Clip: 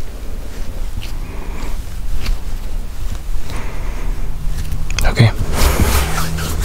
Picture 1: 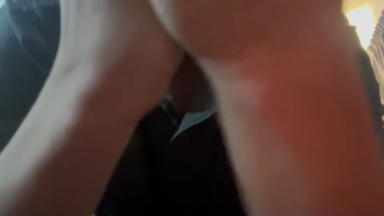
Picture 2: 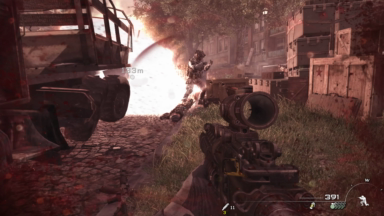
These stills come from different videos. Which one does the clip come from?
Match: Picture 1